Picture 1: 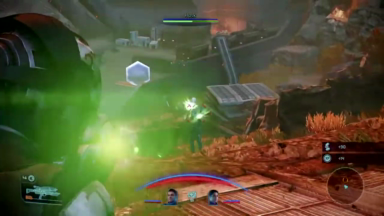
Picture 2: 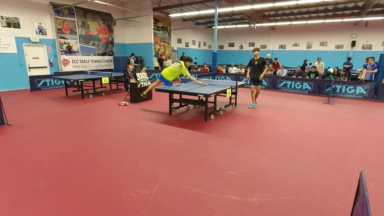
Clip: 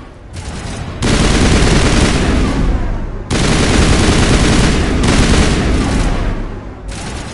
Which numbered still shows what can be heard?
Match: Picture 1